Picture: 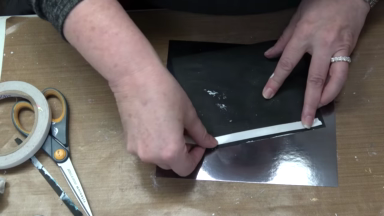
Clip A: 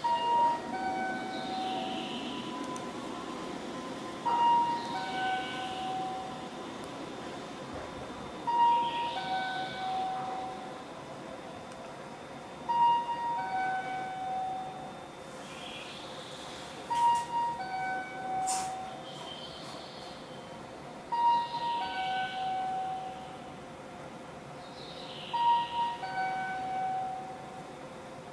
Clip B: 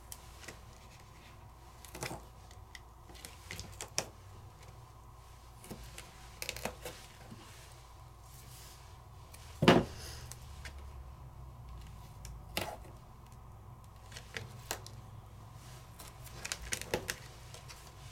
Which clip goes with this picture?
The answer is B